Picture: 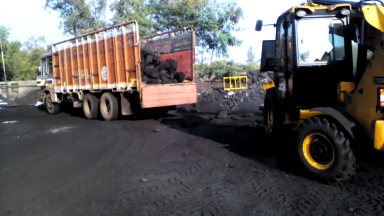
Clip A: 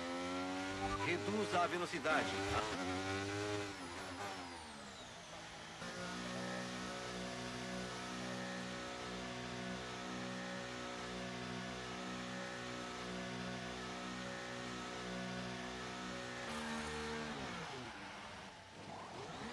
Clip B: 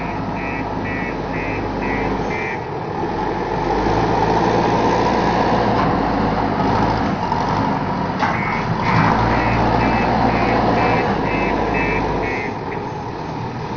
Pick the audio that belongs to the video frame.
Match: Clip B